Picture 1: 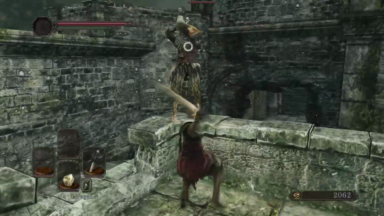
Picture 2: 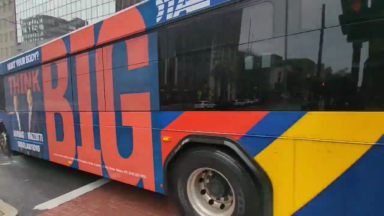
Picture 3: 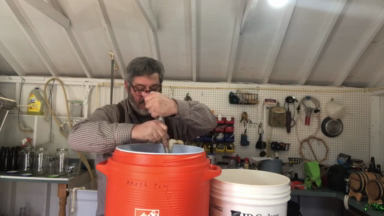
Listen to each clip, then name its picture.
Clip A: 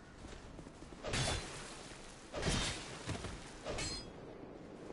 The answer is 1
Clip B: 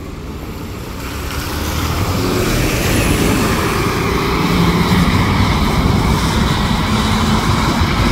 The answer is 2